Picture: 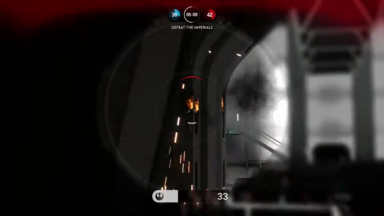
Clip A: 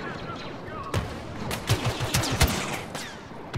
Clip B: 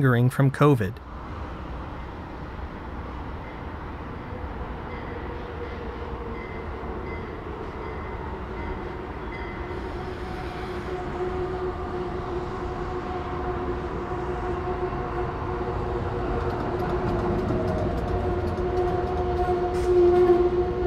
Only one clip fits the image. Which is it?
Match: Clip A